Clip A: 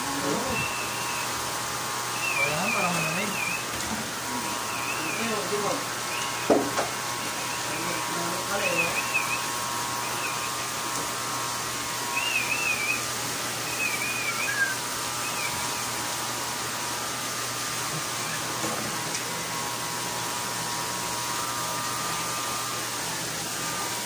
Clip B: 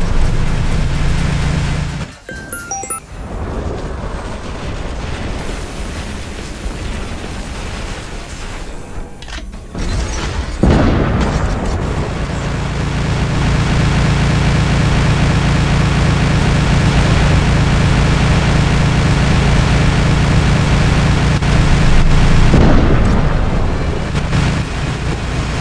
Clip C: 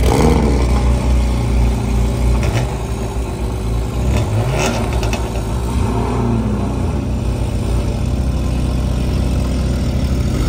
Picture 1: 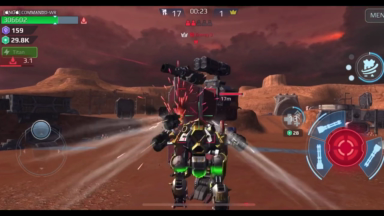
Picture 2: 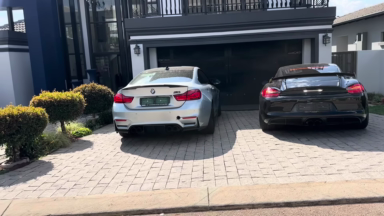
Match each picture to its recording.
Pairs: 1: B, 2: C